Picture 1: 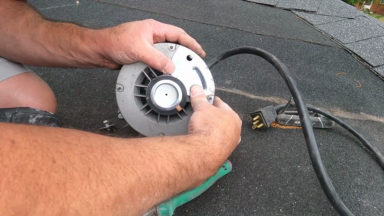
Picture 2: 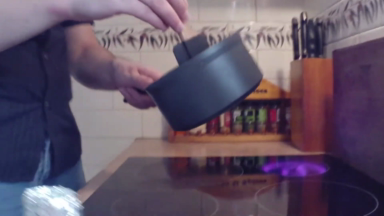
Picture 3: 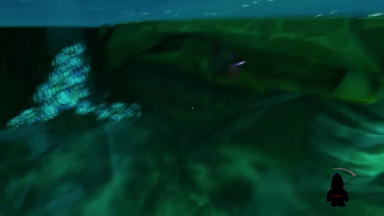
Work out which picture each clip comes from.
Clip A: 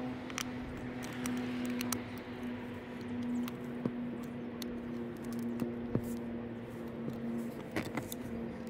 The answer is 1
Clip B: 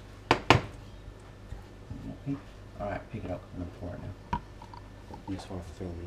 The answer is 2